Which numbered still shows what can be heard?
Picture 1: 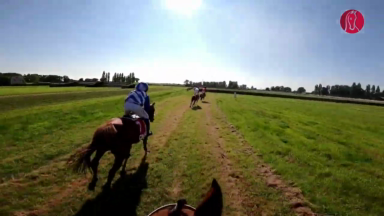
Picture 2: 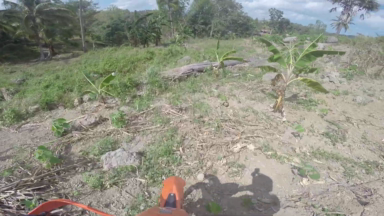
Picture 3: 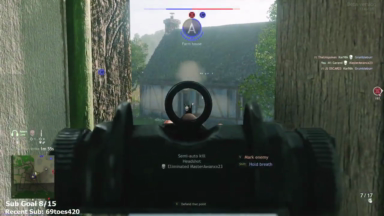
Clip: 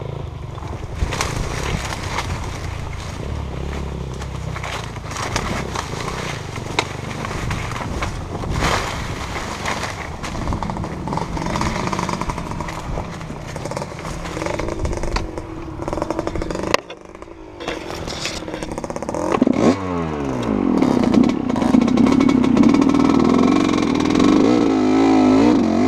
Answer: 2